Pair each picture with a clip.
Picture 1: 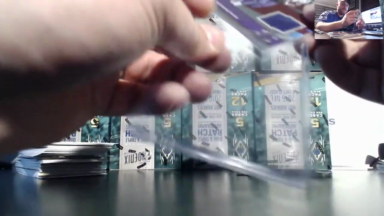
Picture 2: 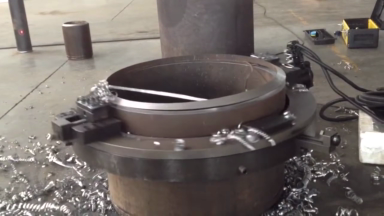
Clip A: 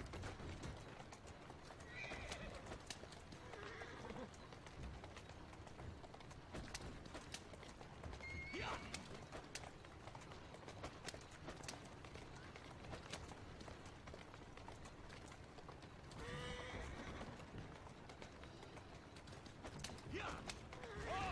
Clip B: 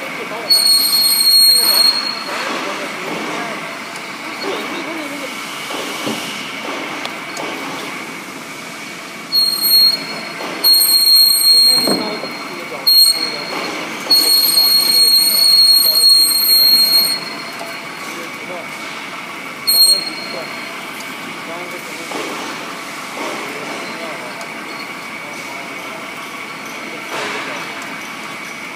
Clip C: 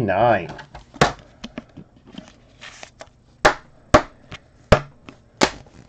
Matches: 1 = C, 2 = B